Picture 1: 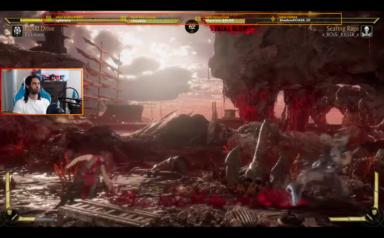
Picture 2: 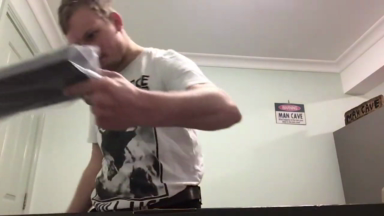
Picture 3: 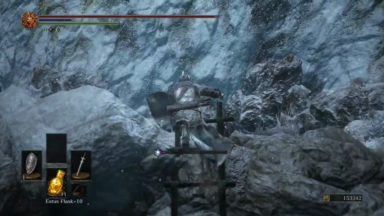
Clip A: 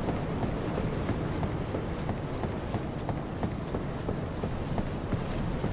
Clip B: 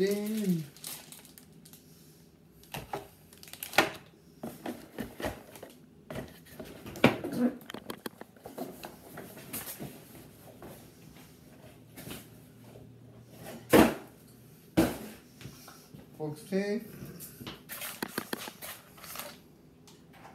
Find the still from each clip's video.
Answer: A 3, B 2